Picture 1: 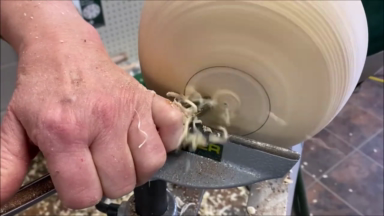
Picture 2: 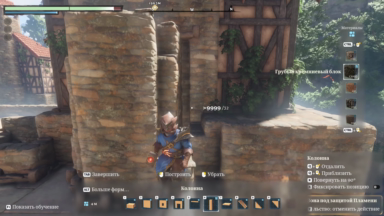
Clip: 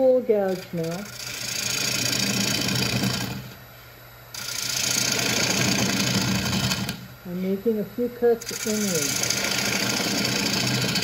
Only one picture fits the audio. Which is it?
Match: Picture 1